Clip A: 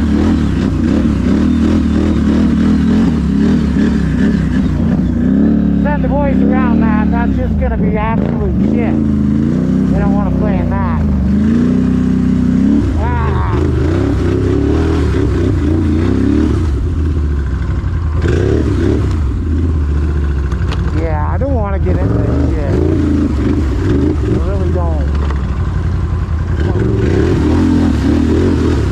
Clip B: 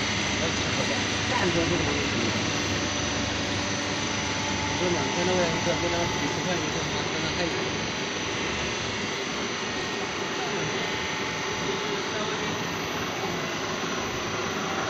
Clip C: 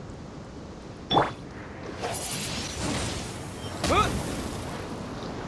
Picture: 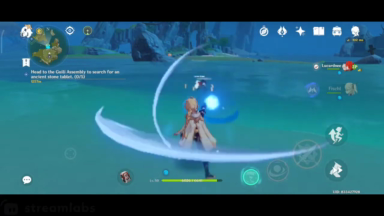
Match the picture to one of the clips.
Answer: C